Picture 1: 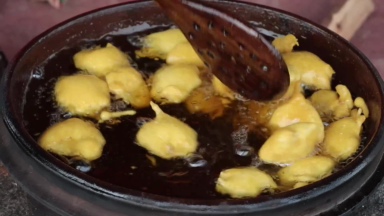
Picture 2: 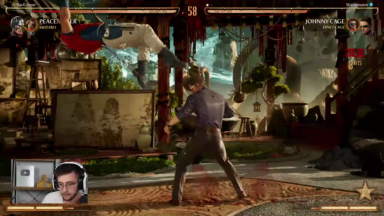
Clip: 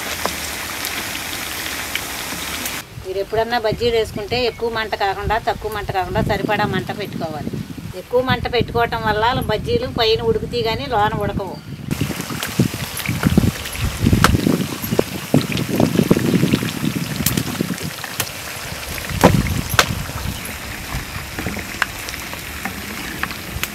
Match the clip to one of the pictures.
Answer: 1